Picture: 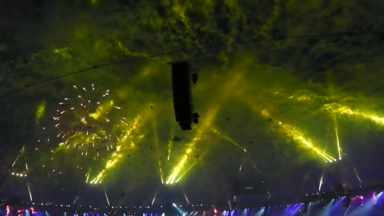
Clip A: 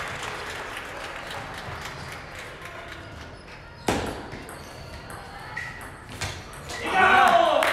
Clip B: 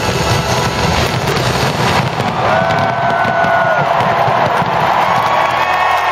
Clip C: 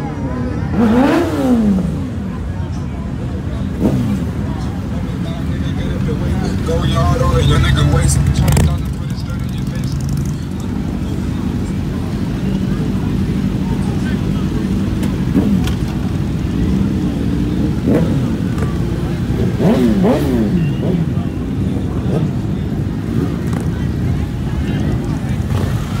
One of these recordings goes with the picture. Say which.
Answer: B